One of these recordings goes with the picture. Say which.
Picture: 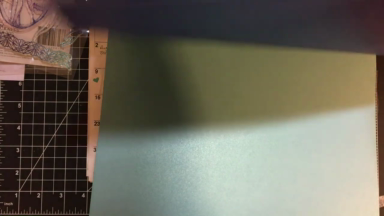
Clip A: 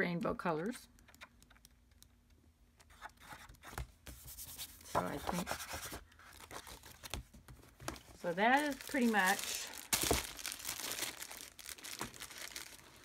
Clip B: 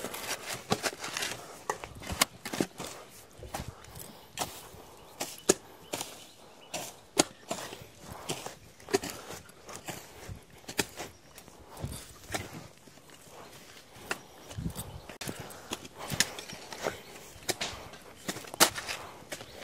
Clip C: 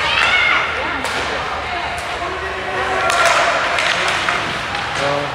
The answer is A